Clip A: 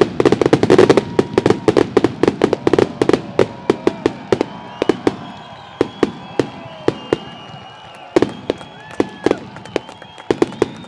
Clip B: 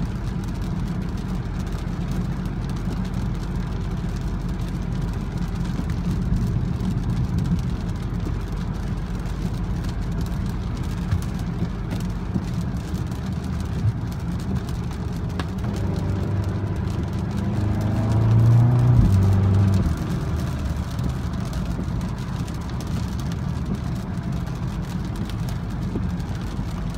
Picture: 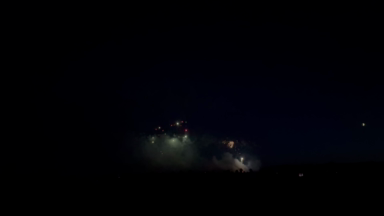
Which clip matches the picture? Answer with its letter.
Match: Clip A